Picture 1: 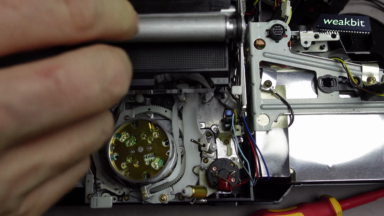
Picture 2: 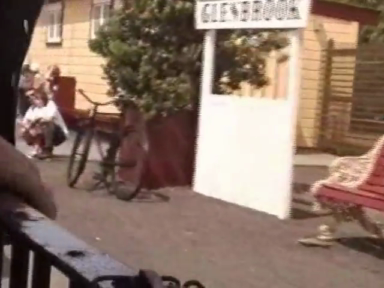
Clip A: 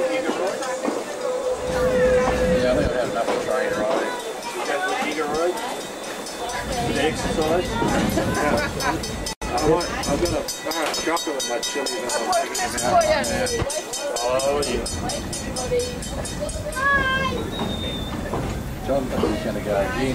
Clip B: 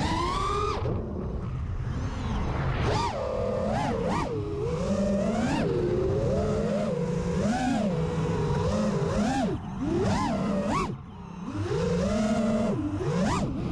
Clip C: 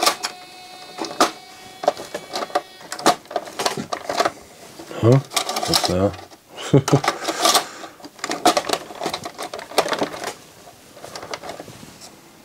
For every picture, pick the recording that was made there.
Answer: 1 C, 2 A